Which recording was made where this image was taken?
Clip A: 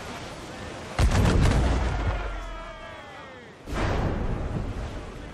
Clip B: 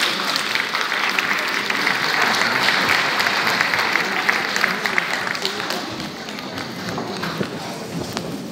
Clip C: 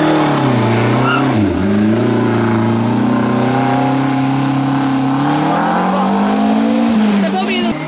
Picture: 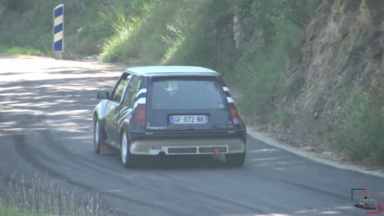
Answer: C